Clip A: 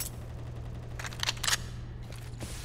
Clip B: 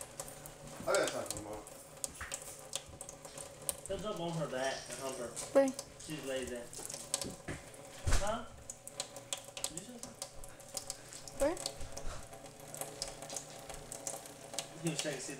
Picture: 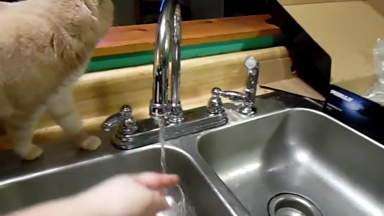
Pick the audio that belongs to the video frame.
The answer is B